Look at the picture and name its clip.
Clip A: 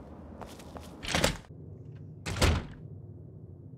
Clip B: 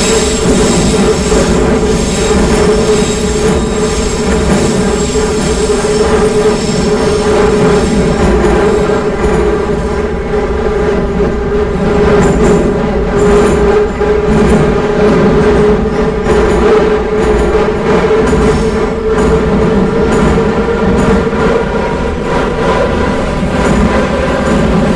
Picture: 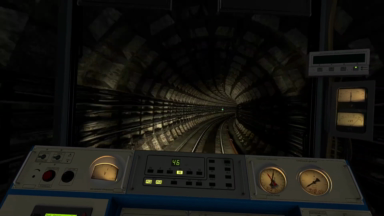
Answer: B